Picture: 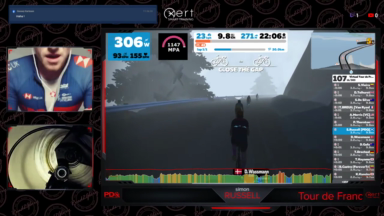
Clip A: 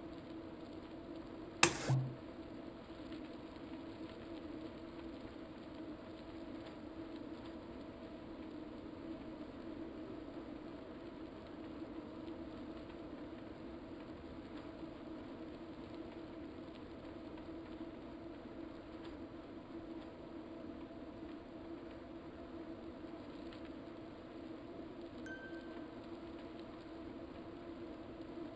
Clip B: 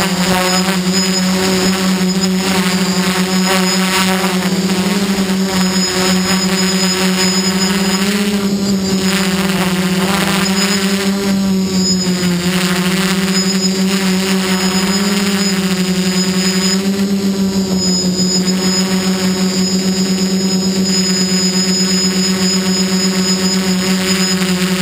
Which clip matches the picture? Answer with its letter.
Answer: A